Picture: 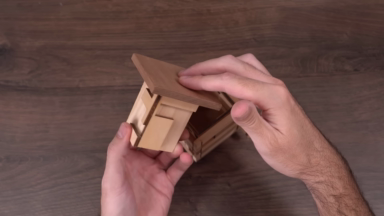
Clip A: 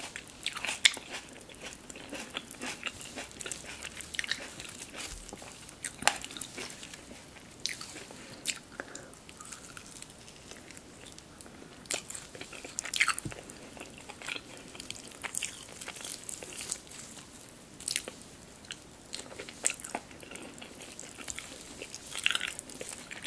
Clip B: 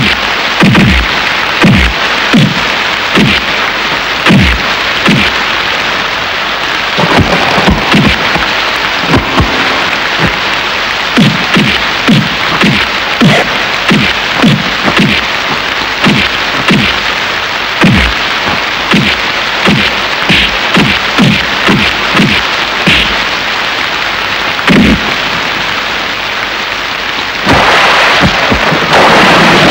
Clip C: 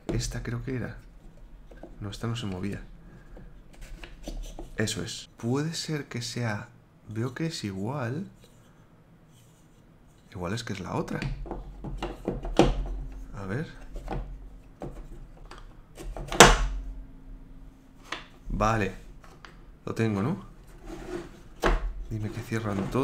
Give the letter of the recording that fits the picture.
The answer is C